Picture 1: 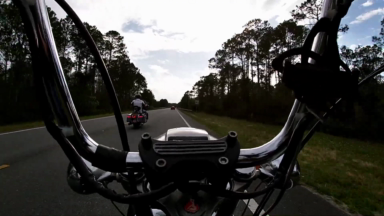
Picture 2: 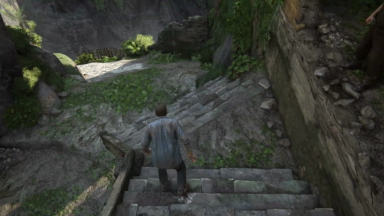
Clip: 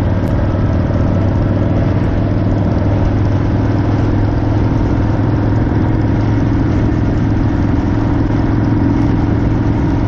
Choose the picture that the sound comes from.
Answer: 1